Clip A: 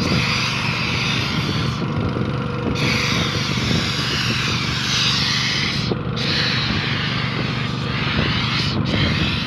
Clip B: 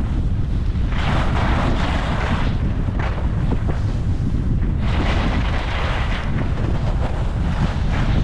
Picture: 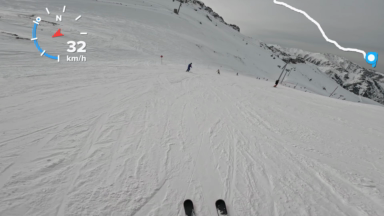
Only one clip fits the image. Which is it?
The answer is B